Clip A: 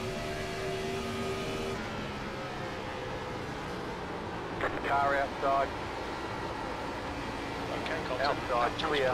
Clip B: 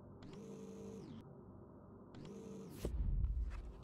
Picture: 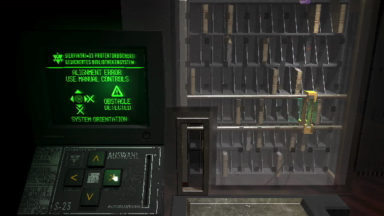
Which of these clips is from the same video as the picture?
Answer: B